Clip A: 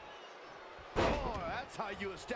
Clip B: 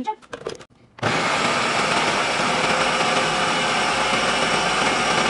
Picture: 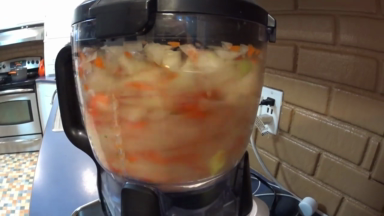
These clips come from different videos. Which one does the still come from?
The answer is B